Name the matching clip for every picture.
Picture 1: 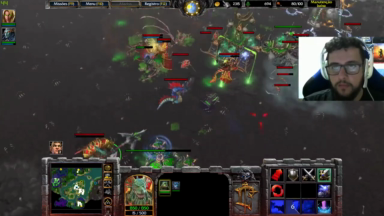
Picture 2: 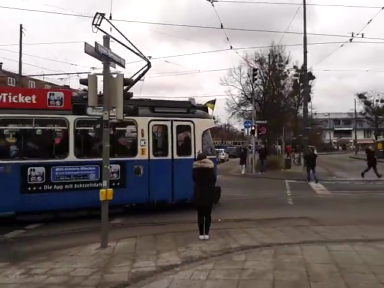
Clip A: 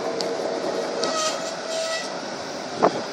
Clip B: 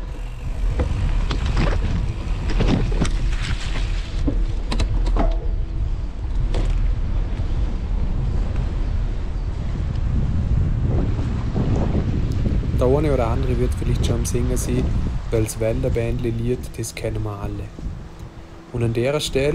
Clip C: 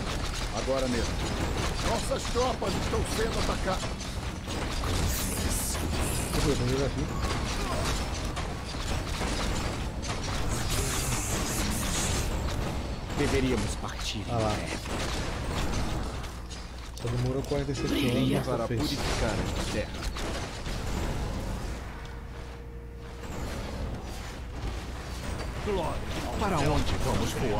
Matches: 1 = C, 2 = A